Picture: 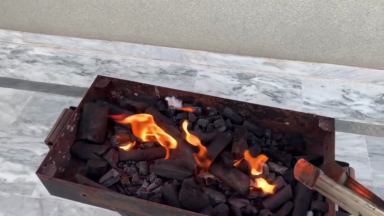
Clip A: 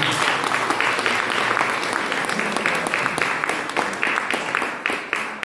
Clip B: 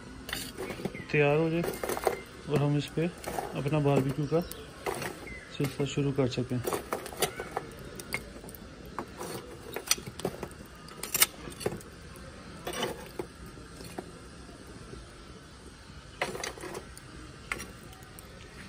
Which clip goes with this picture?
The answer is B